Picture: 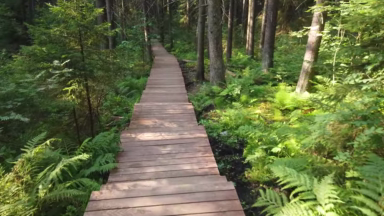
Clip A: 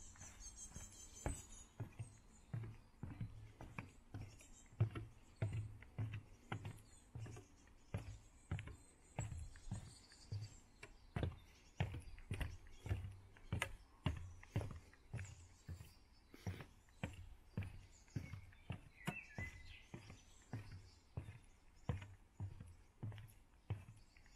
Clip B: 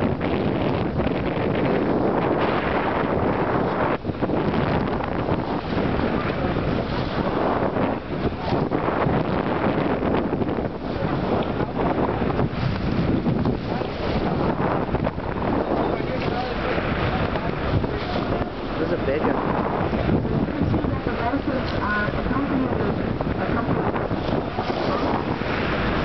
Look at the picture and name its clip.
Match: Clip A